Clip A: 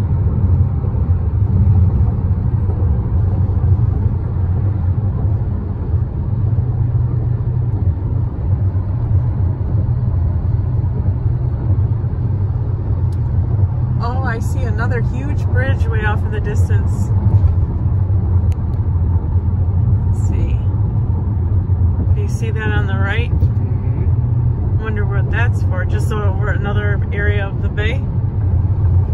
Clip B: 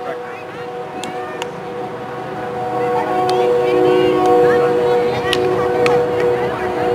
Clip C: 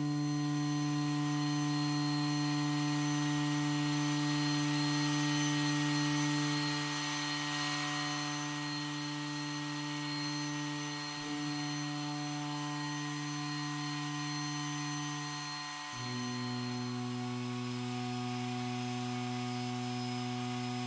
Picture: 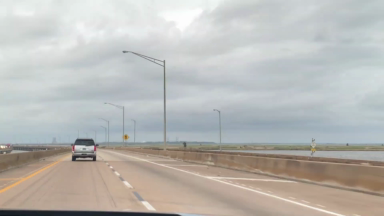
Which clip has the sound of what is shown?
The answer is A